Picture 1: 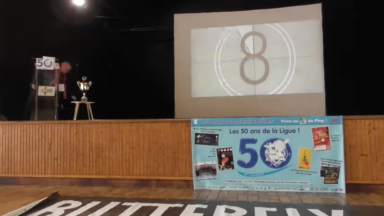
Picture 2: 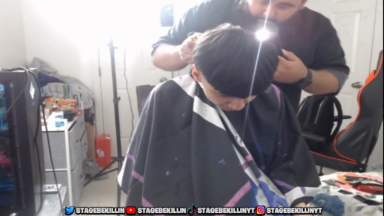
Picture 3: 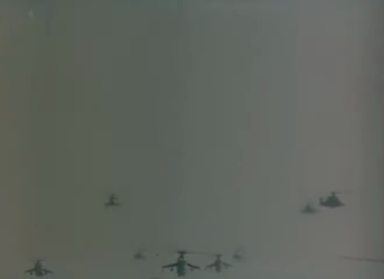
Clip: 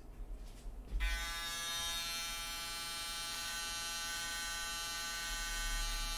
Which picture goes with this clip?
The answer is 2